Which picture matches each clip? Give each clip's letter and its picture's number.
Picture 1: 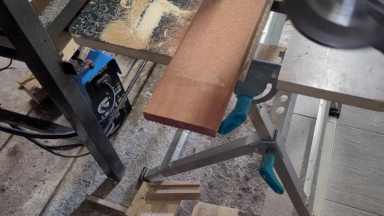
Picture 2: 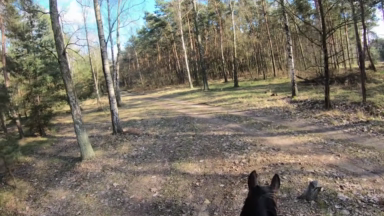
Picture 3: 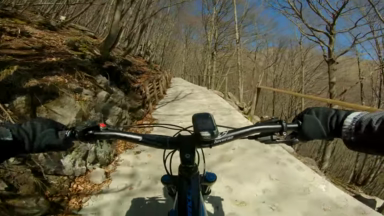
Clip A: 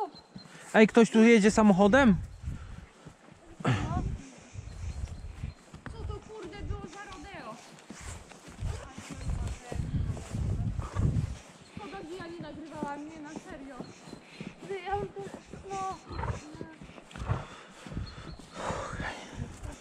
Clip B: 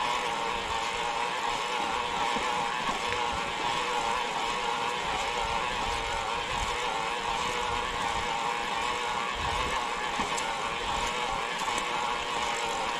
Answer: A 2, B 3